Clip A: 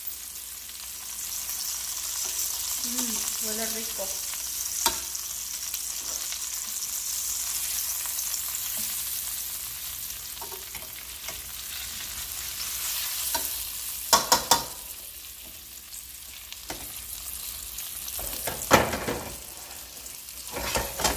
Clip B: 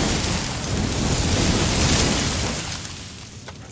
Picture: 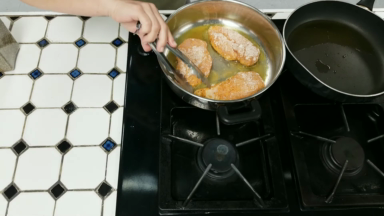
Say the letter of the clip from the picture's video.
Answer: A